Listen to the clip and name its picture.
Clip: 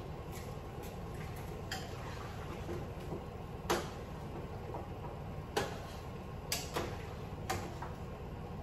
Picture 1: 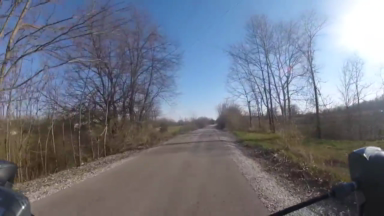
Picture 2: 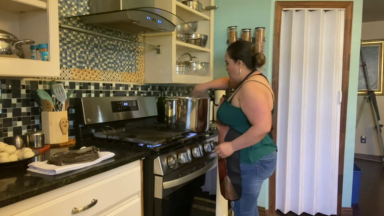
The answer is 2